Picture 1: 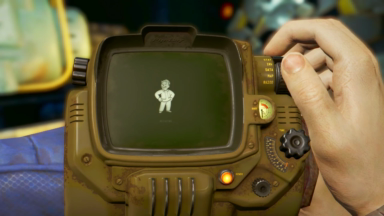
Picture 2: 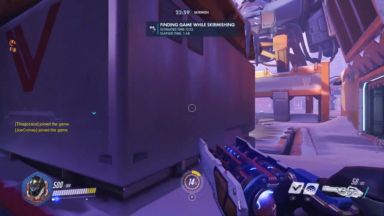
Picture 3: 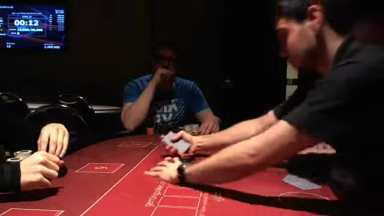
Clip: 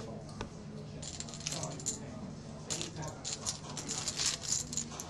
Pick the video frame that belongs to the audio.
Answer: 3